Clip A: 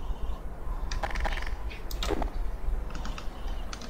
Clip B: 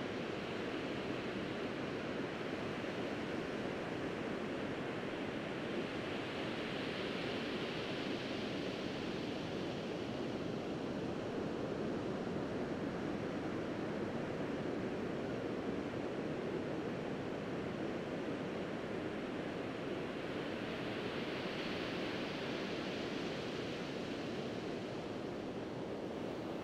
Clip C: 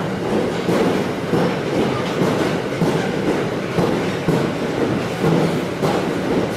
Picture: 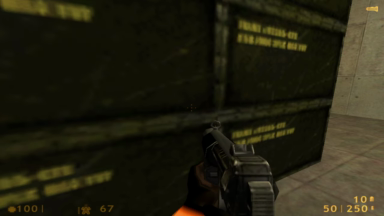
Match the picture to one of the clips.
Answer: A